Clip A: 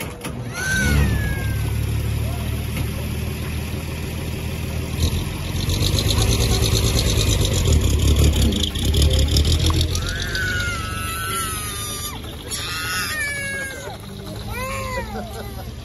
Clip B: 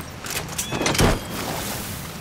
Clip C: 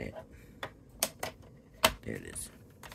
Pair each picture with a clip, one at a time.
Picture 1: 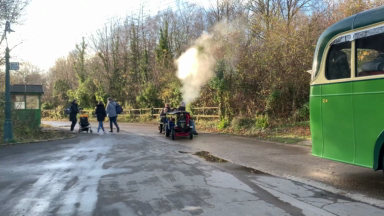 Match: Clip A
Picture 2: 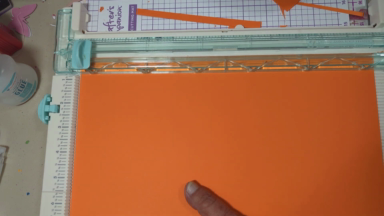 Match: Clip C